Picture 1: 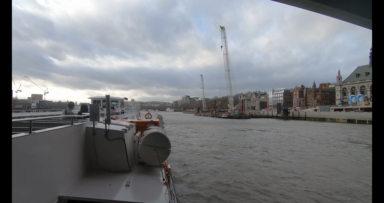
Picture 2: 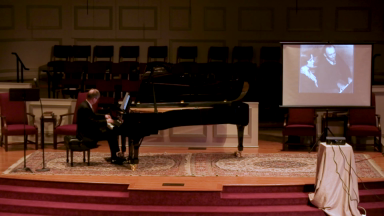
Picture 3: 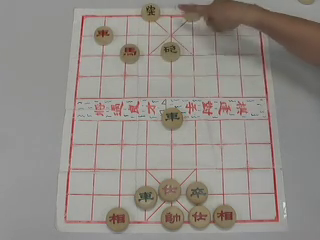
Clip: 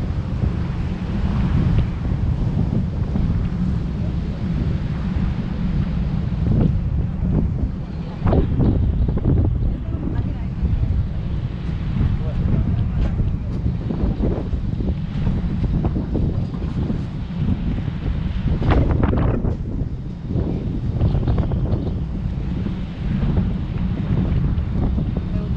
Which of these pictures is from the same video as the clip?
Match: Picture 1